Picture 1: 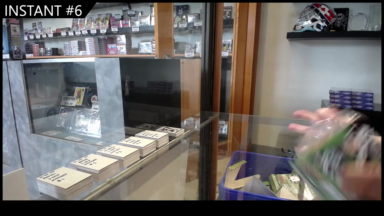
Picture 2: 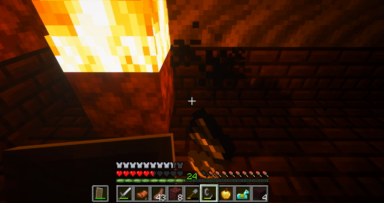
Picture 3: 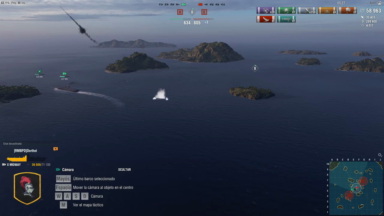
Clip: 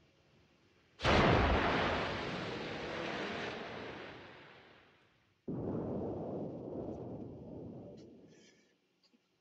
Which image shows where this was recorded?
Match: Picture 3